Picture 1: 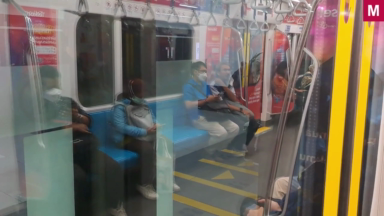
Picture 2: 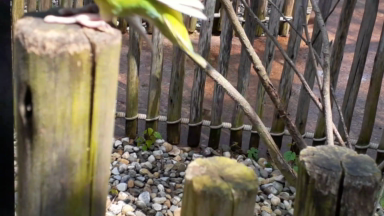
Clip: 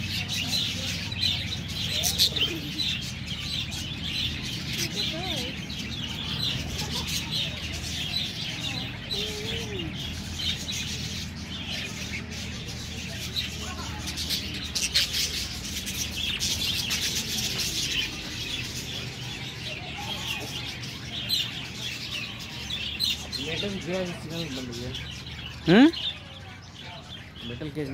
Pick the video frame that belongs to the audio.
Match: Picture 2